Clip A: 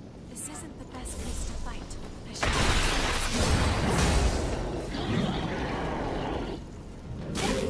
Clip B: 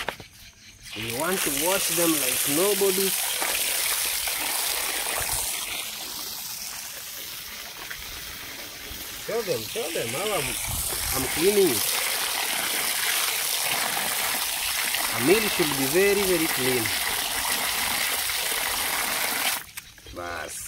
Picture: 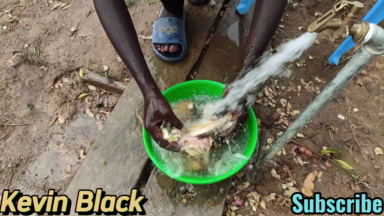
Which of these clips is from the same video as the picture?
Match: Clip B